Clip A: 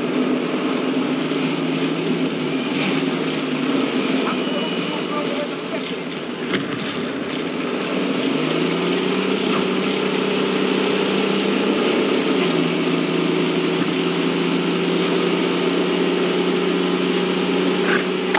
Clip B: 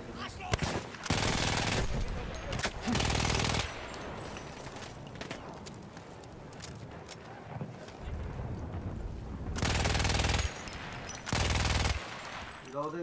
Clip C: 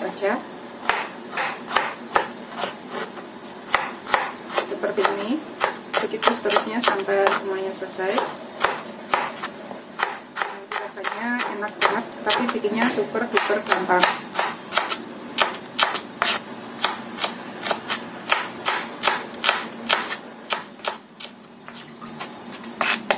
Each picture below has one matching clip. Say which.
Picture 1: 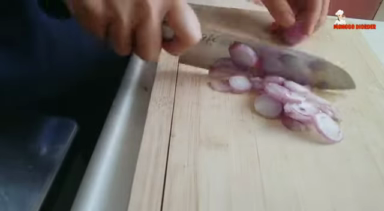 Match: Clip C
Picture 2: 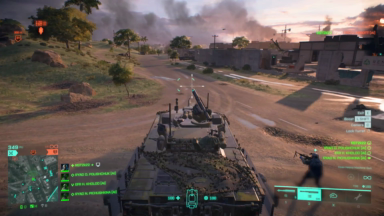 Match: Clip A